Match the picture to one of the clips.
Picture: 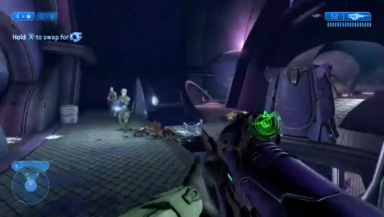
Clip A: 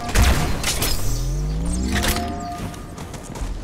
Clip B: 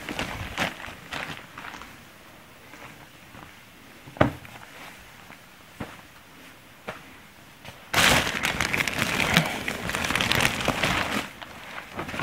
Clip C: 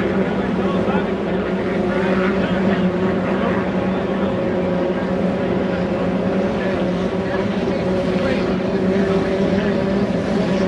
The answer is A